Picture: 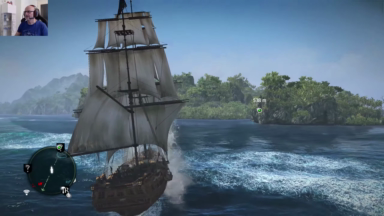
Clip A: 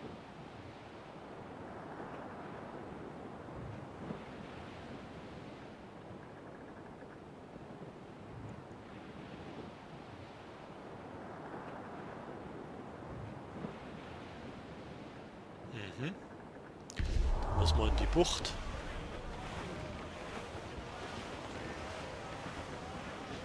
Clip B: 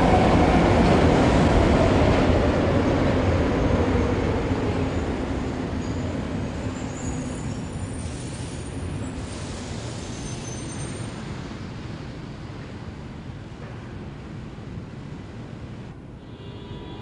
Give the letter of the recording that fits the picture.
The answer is A